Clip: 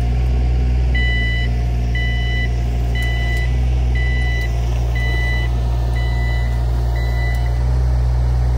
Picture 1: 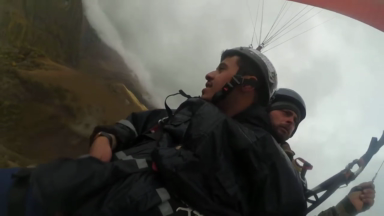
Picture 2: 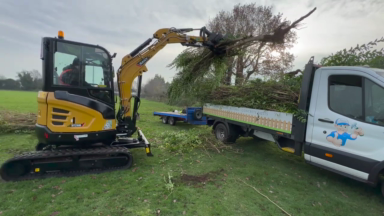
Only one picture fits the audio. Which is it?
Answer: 2